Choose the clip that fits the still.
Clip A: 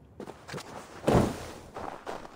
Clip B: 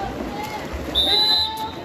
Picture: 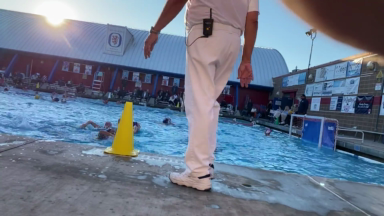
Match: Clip B